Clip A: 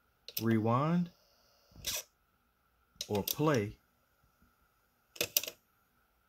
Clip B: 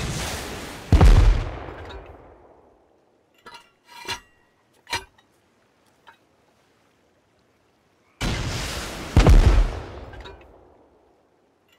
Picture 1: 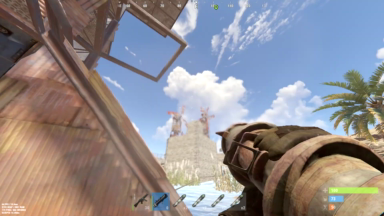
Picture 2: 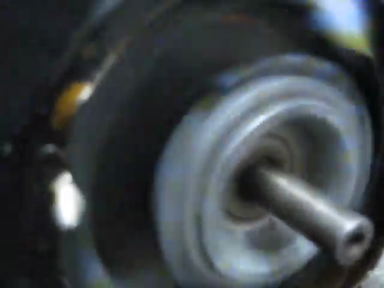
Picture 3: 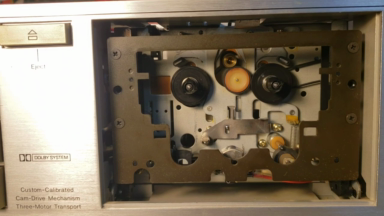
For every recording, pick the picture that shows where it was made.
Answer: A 3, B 1